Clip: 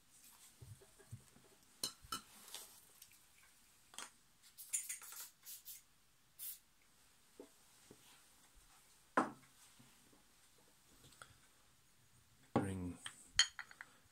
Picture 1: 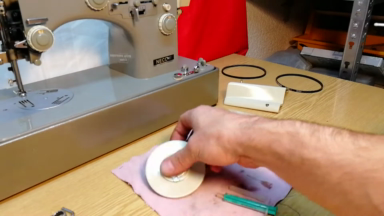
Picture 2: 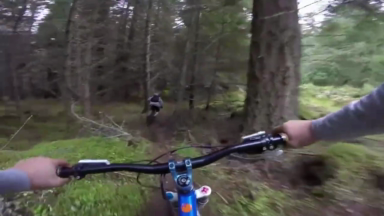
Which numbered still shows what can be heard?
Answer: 1